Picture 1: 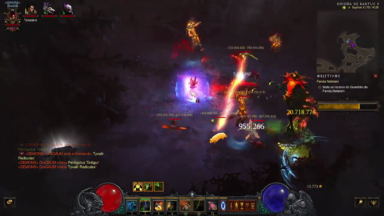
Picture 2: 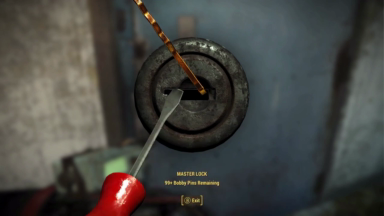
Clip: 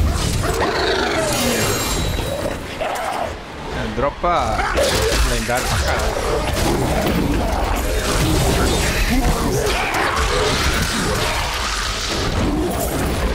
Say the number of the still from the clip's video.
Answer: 1